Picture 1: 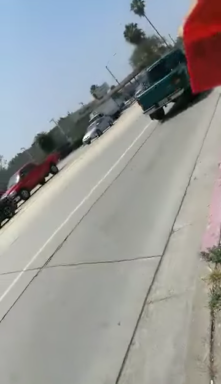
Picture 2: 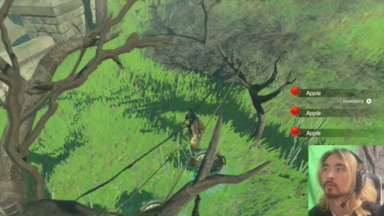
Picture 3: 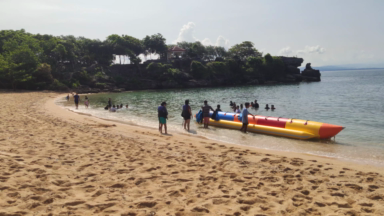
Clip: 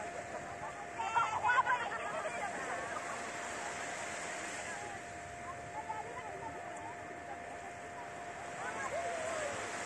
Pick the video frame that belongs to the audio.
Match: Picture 3